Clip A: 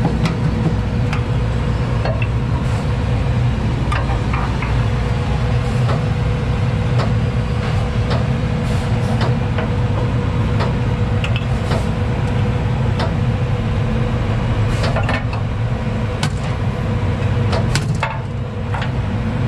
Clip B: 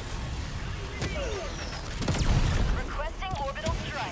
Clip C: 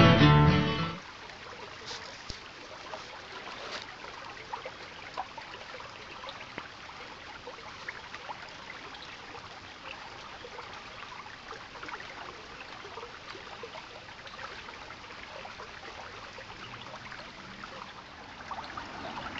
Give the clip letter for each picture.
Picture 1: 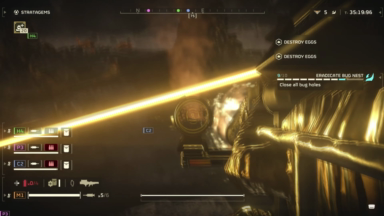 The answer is B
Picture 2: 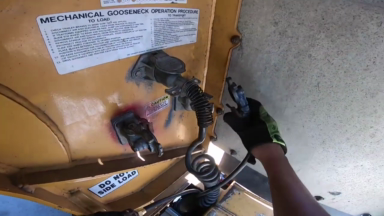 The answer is A